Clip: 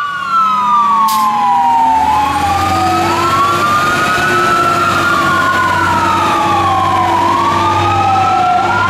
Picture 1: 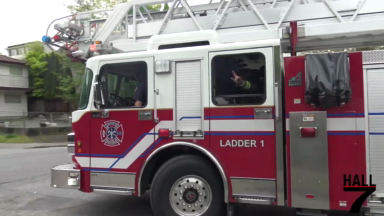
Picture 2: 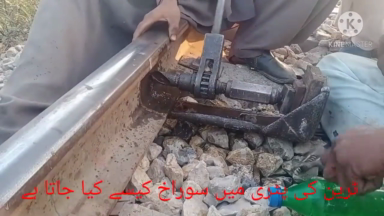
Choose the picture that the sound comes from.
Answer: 1